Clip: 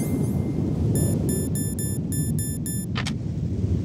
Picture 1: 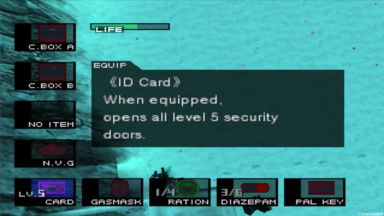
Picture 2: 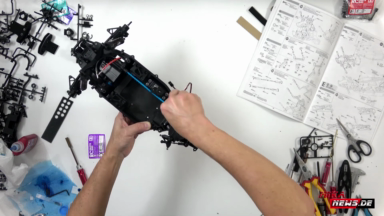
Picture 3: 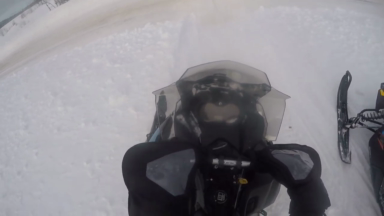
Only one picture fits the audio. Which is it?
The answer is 1